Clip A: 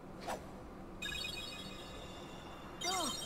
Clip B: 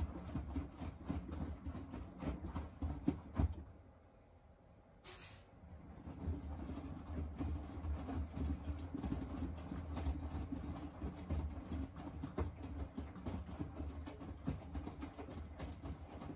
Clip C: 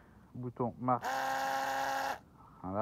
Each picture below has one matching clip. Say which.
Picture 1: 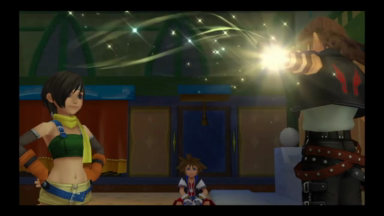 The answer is A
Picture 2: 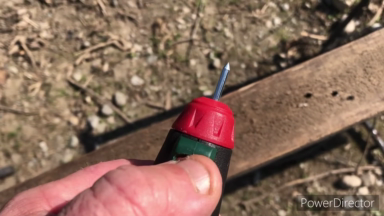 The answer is C